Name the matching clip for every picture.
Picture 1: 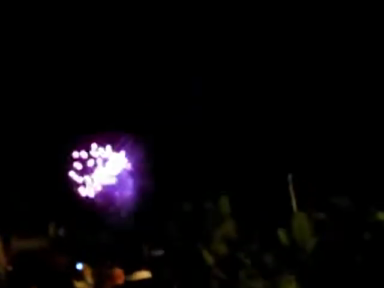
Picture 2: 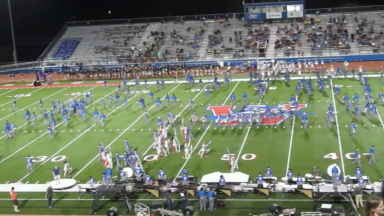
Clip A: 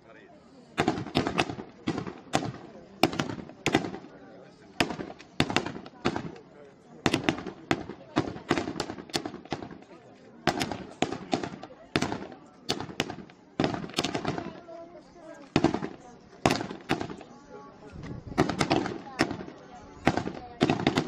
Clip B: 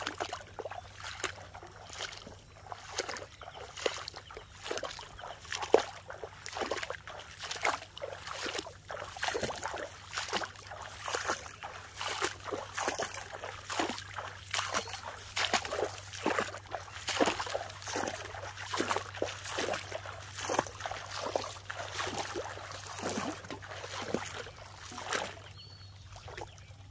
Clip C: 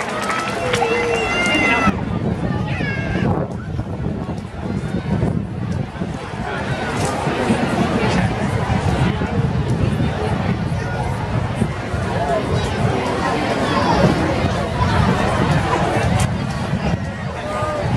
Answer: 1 A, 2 C